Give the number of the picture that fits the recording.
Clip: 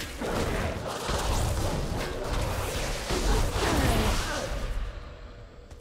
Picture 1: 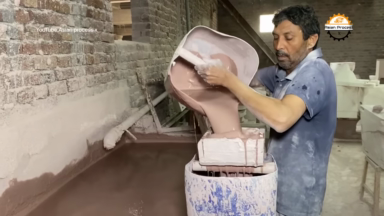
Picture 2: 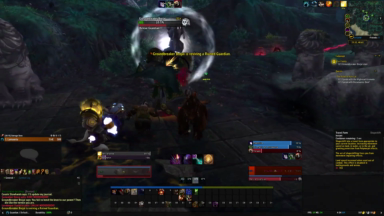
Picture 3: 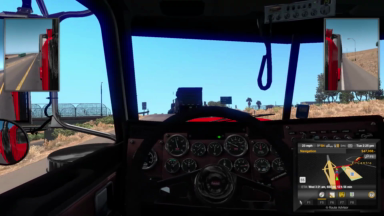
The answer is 2